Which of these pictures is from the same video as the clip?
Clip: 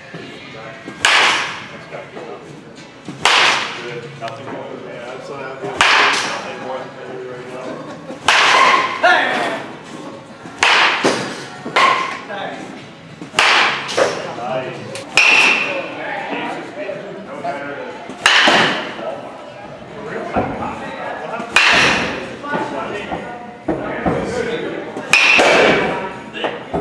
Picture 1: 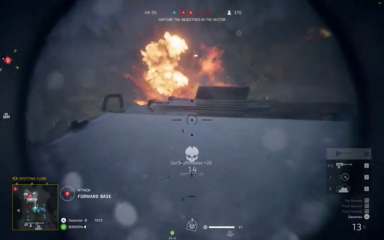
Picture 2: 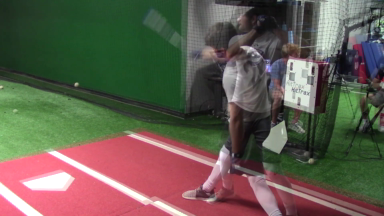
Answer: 2